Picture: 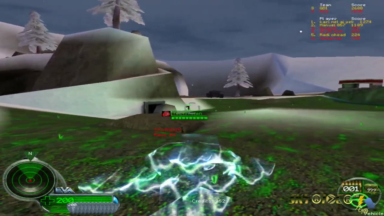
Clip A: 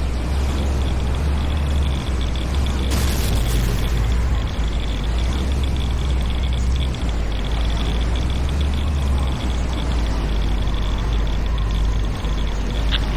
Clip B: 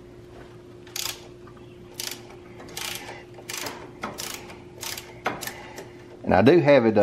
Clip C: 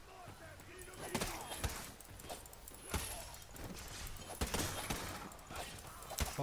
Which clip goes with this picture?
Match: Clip A